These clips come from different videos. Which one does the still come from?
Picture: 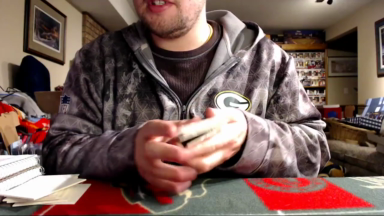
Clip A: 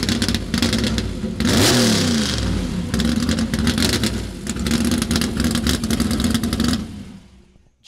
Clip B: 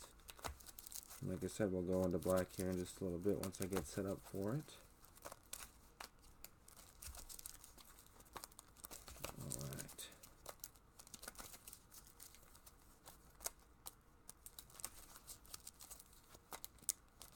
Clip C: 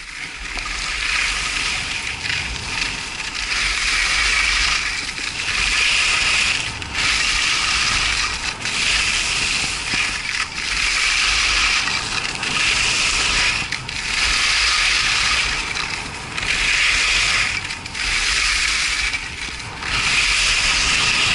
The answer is B